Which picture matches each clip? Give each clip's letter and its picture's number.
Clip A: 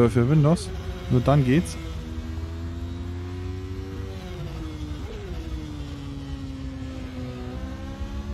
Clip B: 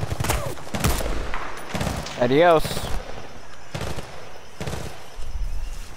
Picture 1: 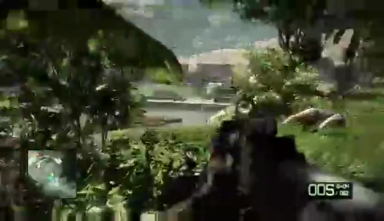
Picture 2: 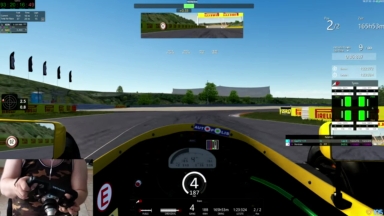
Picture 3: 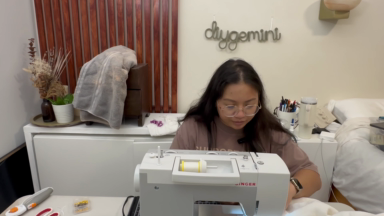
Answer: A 2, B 1